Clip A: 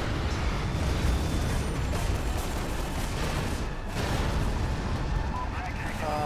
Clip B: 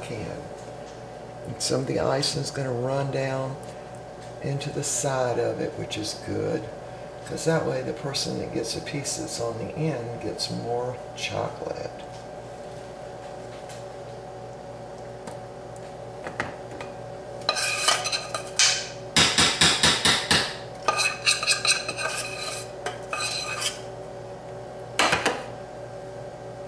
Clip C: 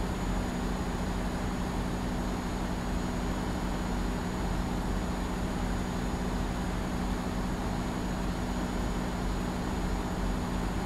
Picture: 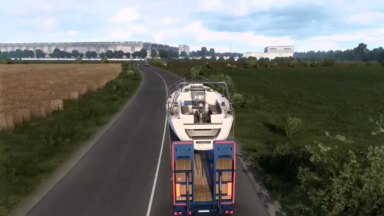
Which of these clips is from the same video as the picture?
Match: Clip C